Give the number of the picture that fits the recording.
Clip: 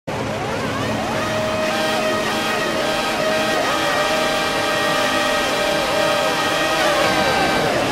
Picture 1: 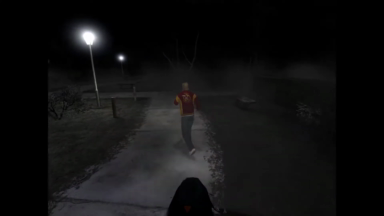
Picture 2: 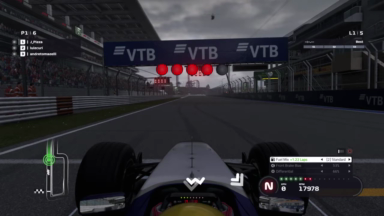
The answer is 2